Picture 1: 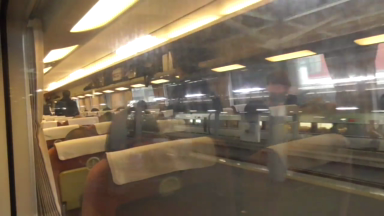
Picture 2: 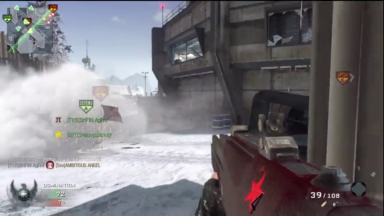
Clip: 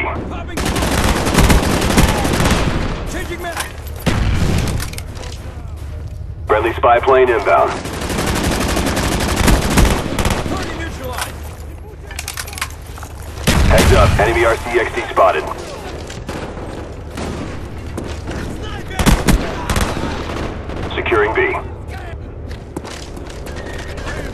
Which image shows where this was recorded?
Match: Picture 2